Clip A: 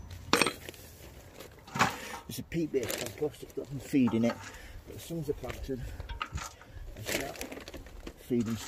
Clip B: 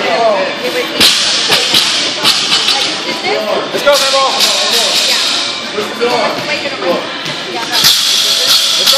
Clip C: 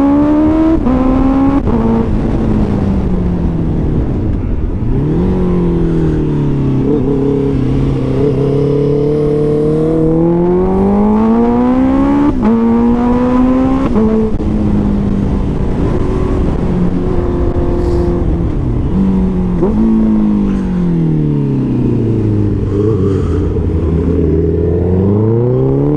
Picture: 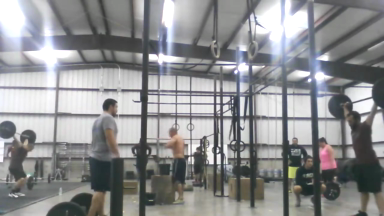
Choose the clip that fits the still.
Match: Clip B